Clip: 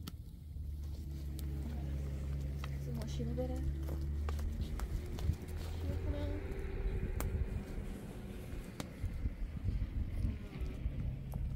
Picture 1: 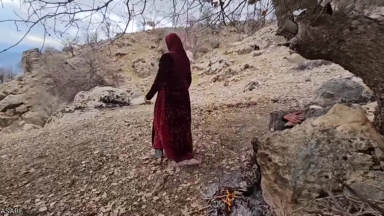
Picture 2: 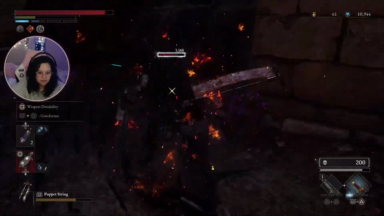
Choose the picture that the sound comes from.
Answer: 1